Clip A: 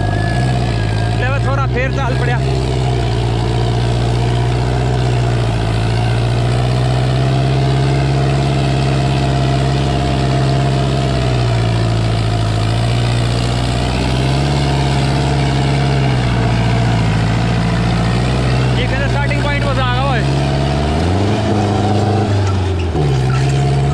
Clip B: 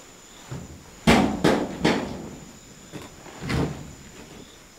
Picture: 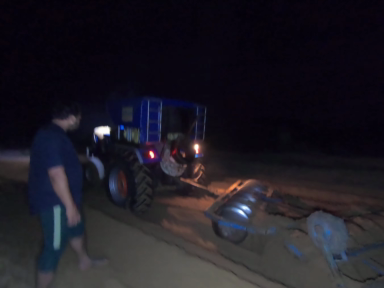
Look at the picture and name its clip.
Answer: A